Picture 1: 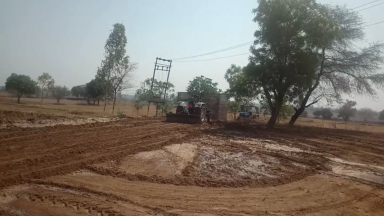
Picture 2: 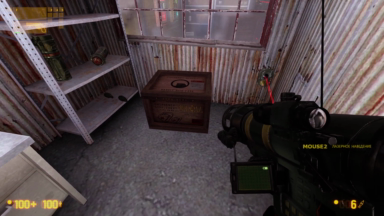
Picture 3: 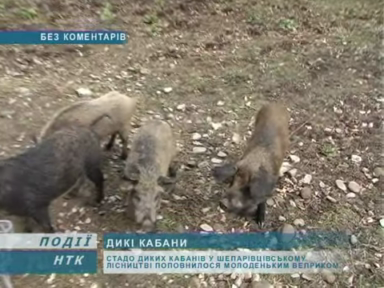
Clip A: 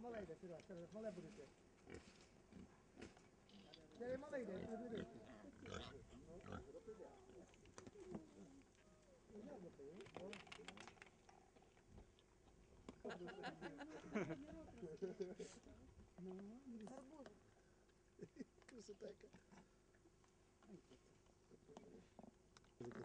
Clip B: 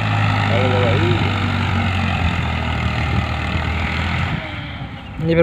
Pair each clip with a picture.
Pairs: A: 3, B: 1